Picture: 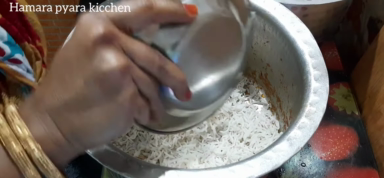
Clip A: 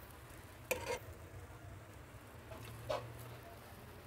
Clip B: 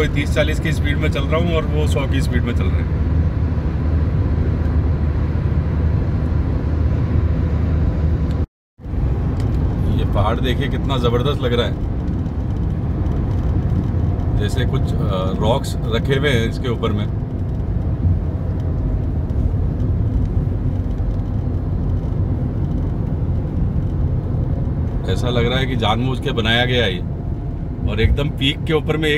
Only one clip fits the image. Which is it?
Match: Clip A